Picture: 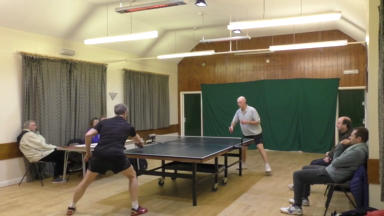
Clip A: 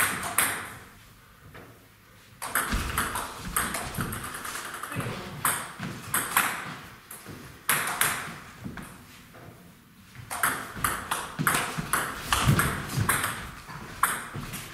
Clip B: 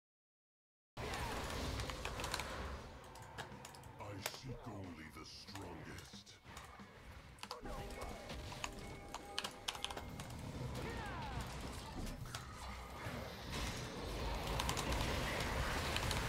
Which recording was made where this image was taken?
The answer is A